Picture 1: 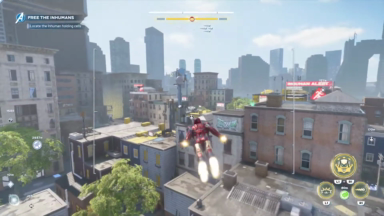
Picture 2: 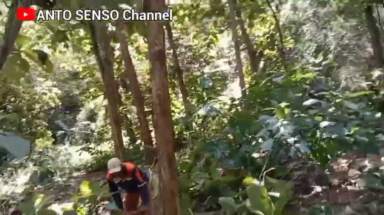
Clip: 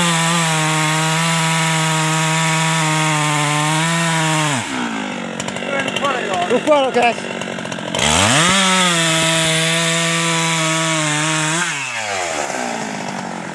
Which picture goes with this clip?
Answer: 2